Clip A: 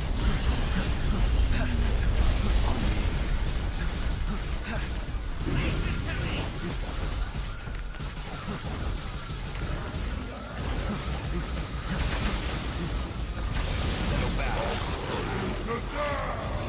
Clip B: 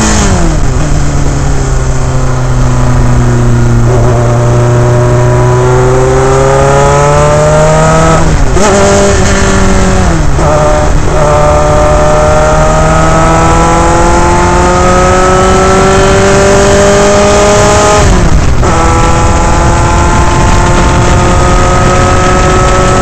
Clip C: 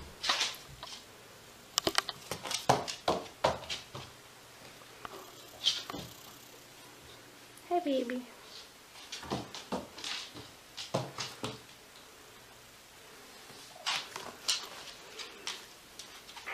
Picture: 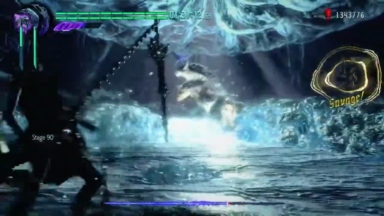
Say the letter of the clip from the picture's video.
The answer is A